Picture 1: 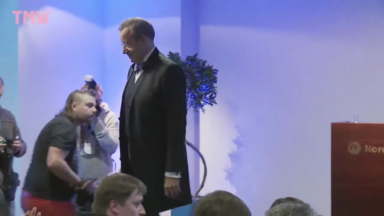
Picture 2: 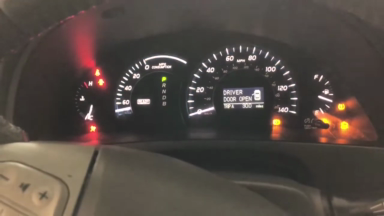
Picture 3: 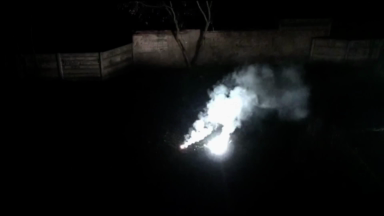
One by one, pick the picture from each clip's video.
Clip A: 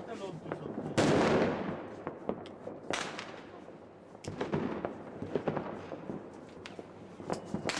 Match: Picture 3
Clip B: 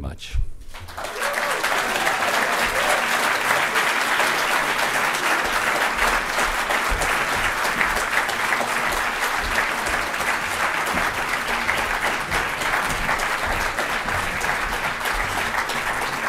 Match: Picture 1